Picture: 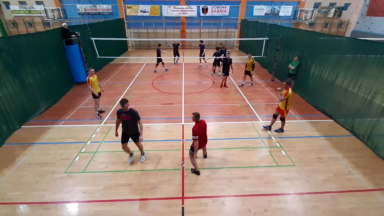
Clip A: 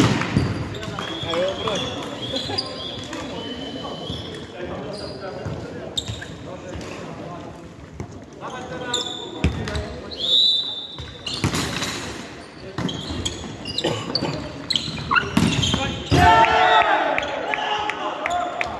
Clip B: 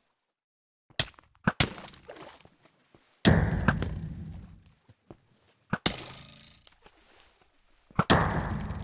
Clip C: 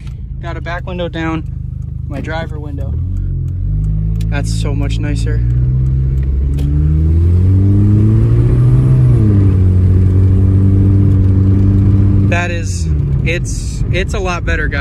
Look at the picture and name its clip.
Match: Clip A